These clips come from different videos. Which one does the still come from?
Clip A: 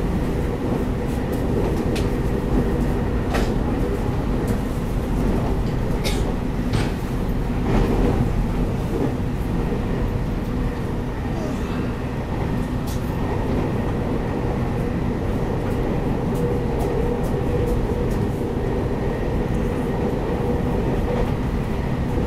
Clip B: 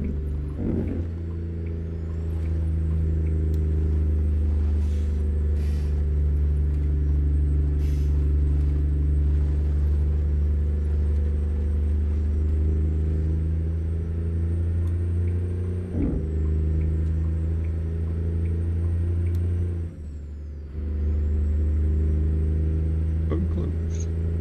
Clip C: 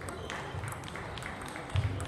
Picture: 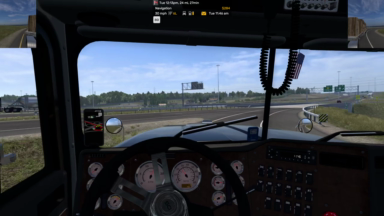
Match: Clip B